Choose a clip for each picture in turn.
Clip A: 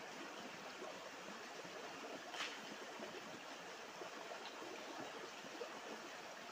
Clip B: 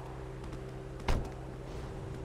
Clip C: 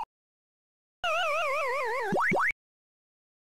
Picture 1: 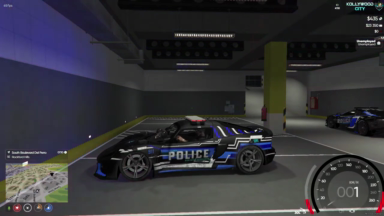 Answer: B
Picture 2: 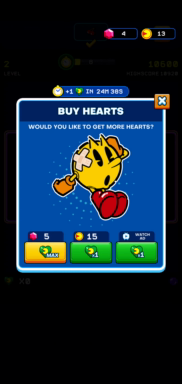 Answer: C